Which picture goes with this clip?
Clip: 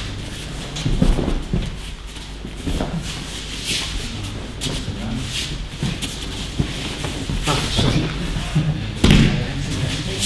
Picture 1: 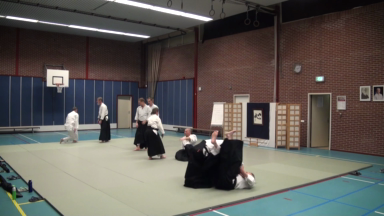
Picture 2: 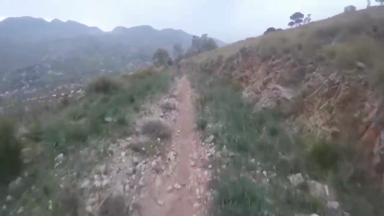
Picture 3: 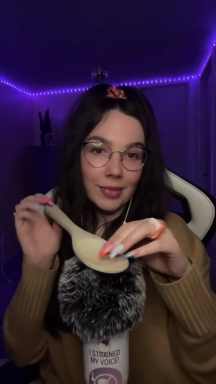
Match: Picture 1